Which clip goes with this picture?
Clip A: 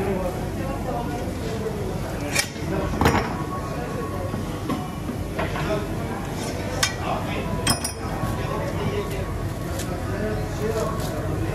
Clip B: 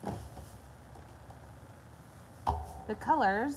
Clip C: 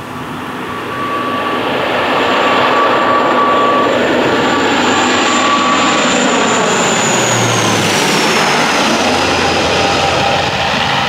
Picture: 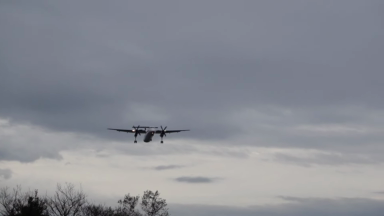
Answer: C